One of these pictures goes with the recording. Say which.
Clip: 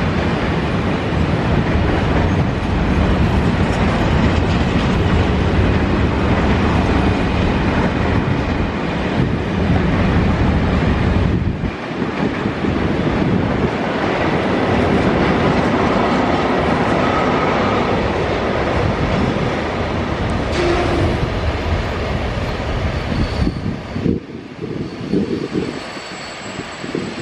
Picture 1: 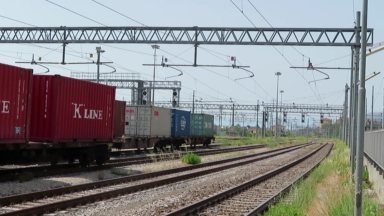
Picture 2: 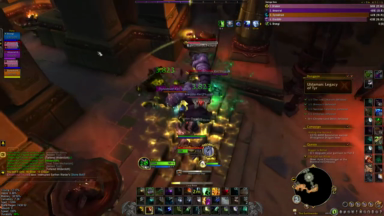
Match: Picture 1